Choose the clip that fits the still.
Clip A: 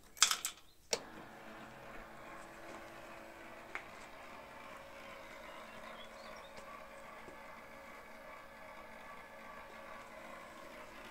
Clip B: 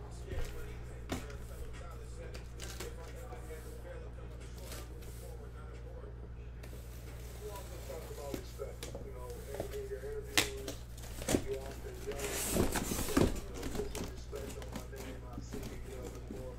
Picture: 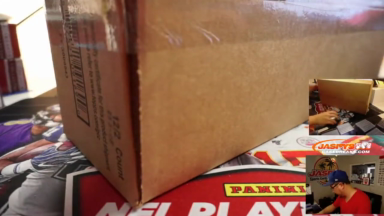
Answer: B